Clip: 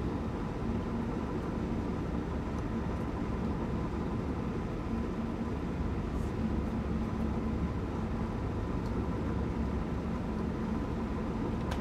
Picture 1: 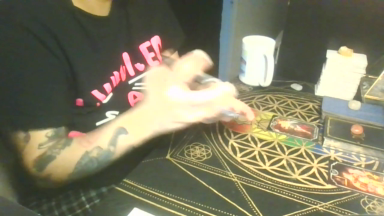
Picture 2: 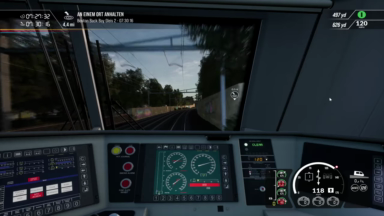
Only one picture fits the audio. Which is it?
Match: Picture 2